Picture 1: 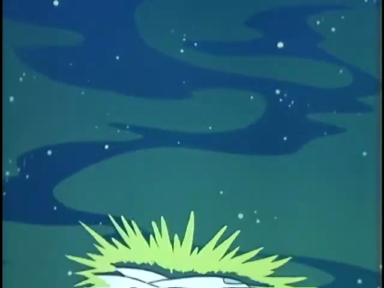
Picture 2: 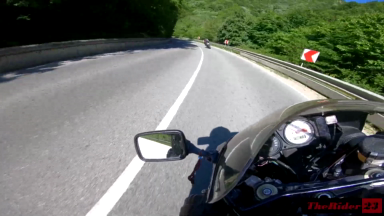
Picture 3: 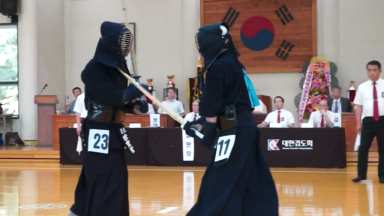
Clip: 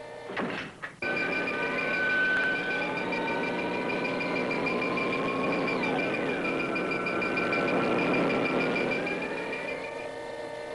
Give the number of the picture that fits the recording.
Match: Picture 1